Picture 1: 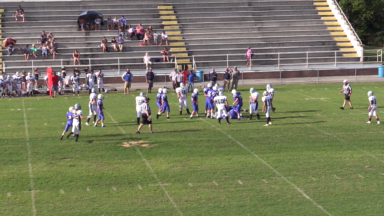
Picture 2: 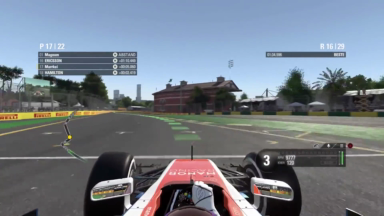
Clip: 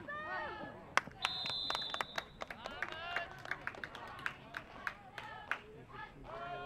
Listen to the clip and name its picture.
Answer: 1